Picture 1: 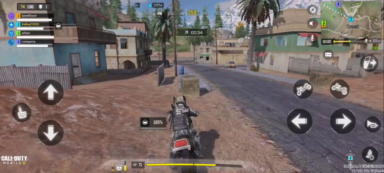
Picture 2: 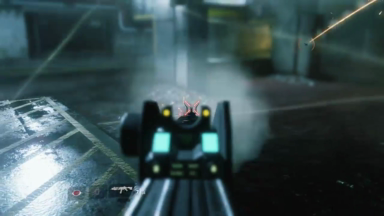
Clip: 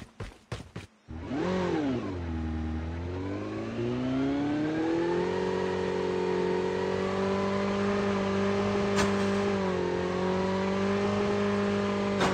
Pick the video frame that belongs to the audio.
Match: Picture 1